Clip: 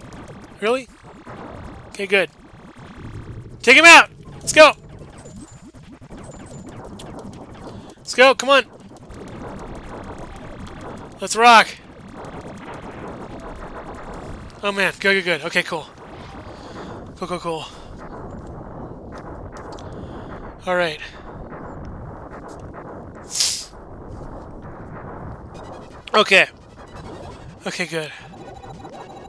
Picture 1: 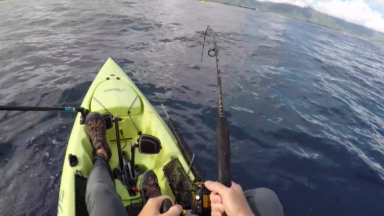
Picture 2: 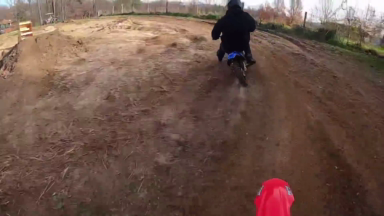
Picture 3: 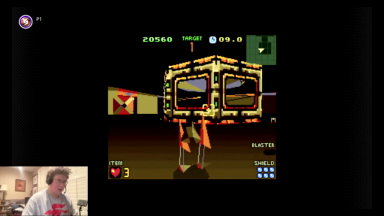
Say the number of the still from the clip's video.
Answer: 3